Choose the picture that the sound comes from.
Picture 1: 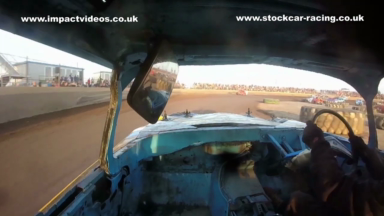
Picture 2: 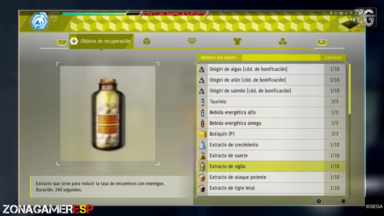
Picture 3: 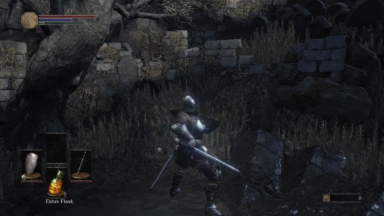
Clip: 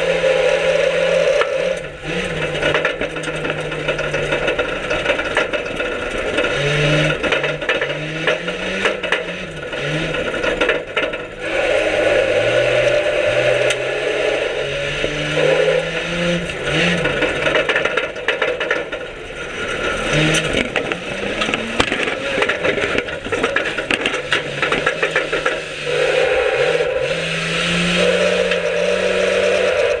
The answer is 1